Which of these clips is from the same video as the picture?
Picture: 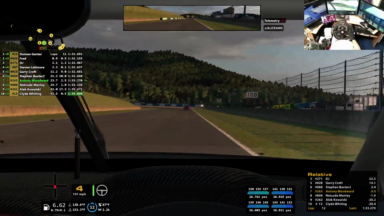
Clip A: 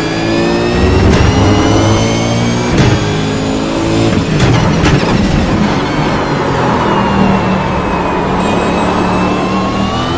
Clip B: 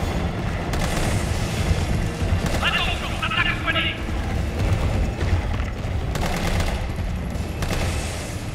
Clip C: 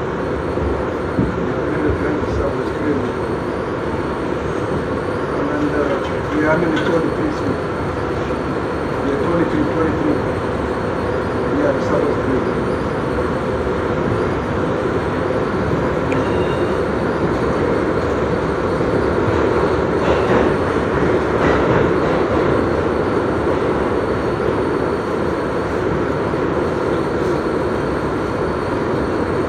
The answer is A